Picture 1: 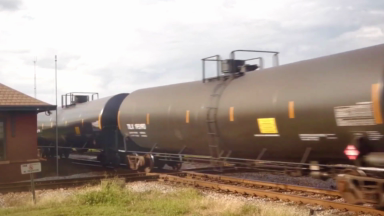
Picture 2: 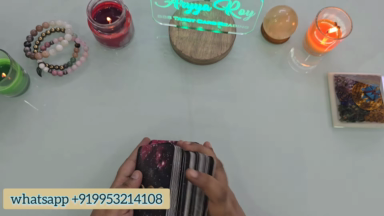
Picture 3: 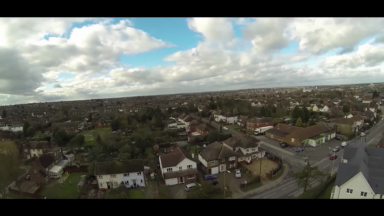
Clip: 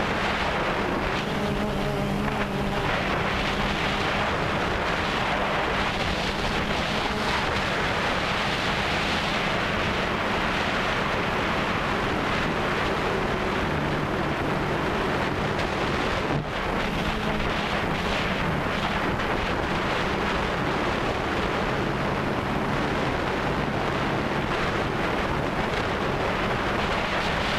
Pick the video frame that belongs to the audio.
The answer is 3